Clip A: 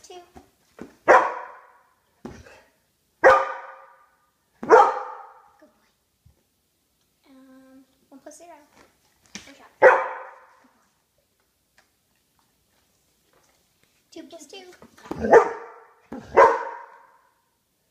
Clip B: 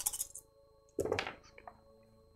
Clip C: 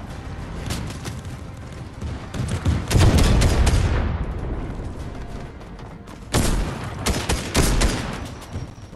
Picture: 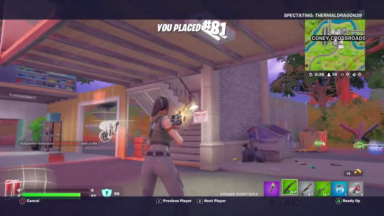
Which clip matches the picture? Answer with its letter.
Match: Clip C